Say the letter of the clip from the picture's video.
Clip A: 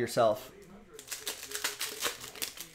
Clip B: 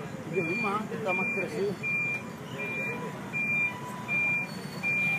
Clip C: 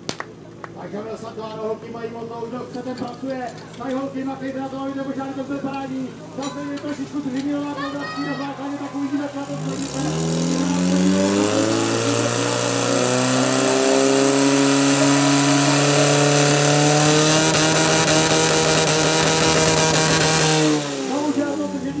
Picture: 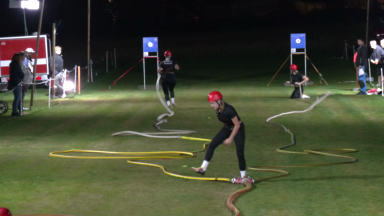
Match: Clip C